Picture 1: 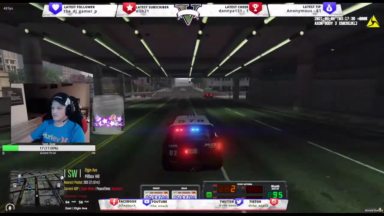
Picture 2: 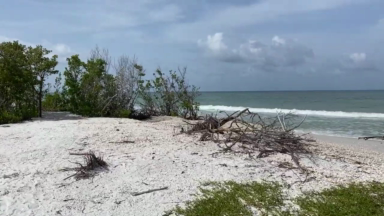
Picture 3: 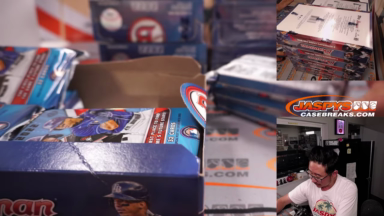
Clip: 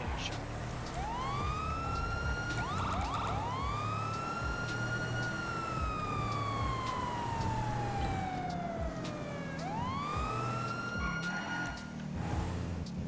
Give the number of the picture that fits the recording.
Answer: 1